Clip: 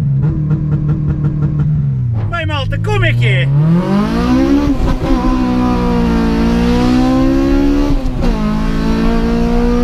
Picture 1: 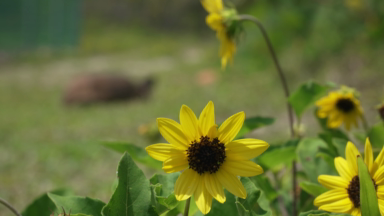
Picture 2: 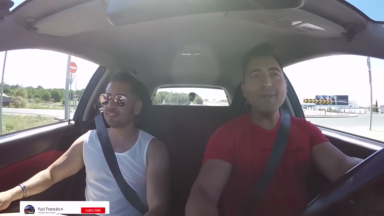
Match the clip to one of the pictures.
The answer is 2